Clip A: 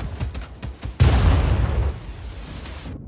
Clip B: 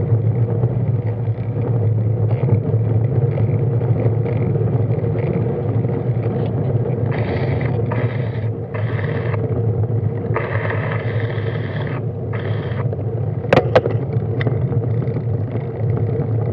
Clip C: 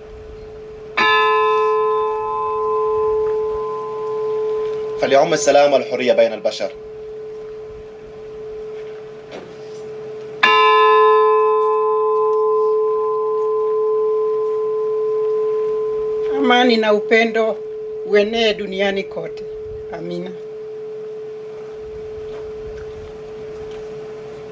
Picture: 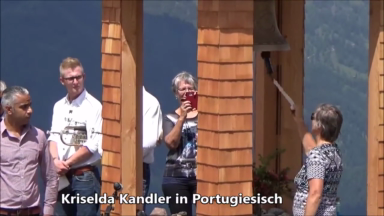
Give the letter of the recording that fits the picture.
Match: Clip C